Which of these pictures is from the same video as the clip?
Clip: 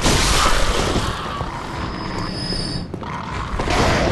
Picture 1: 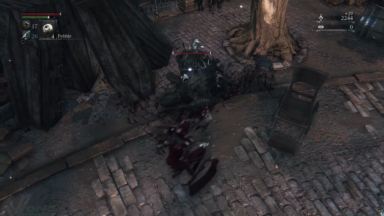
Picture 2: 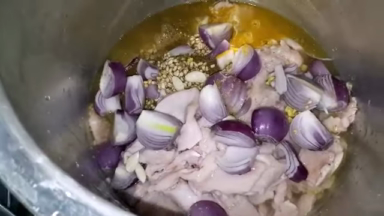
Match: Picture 1